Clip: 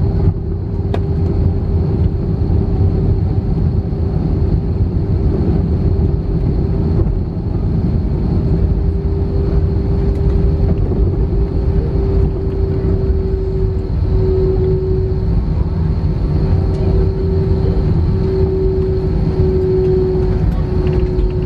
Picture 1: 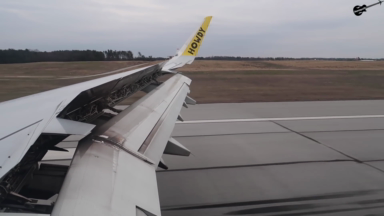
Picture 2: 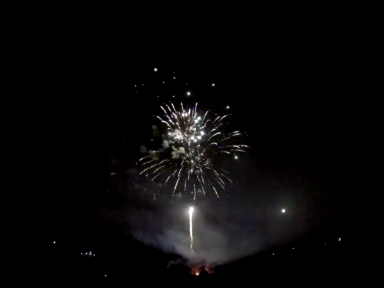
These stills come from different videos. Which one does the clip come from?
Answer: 1